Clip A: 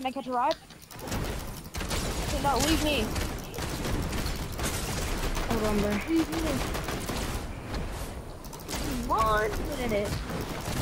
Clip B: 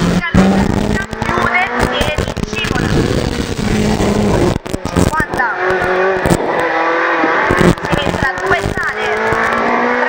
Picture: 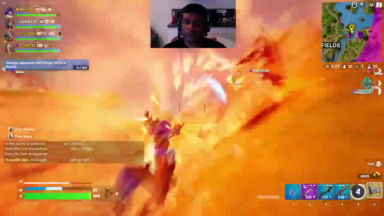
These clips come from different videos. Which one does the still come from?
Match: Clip A